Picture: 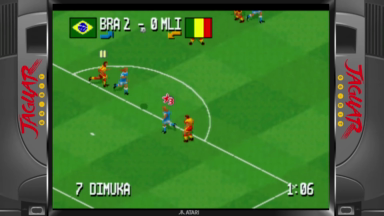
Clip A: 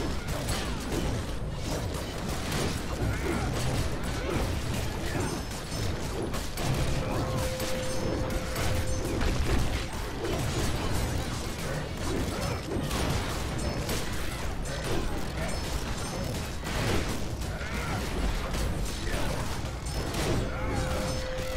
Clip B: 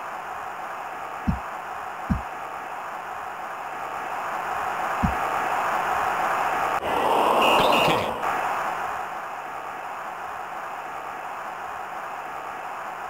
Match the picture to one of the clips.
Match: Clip B